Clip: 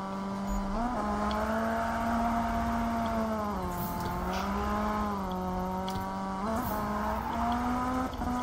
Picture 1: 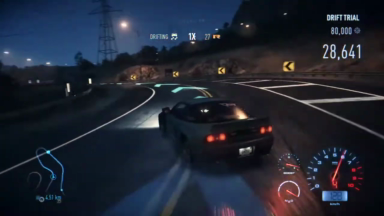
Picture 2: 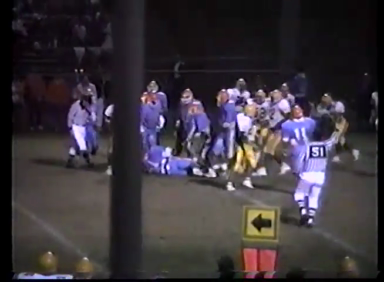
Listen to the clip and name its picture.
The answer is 1